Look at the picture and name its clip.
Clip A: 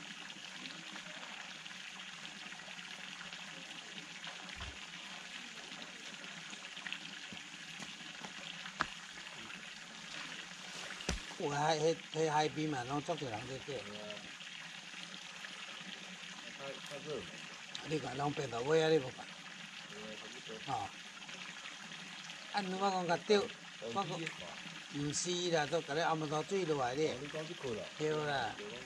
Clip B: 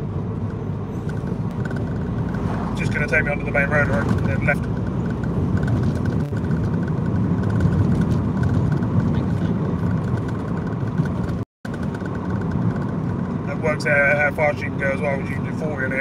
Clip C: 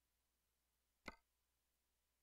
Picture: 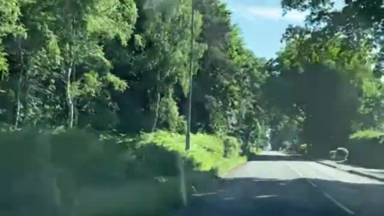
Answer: B